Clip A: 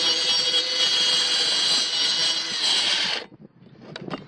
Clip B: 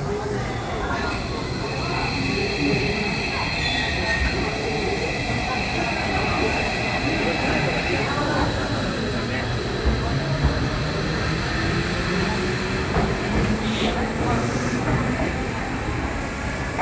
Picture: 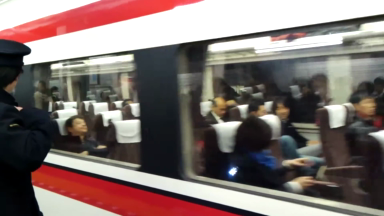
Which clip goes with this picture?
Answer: B